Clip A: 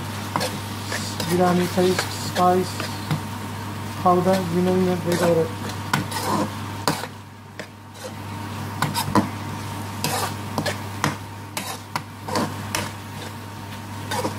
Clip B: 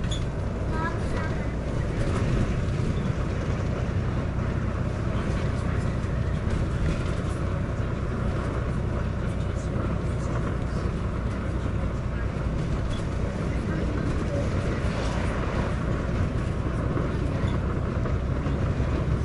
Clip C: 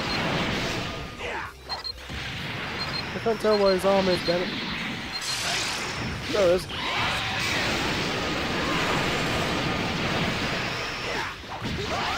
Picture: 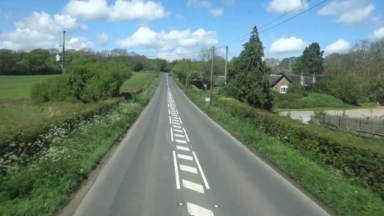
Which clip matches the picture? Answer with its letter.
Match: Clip B